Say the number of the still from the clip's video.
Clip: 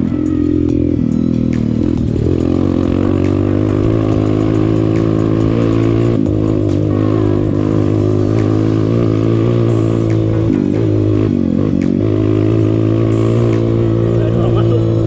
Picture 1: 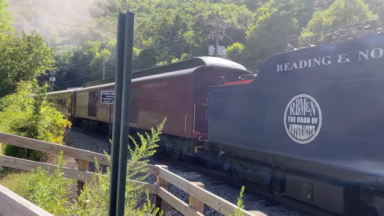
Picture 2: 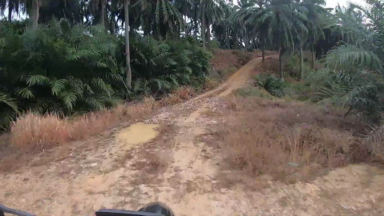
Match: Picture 2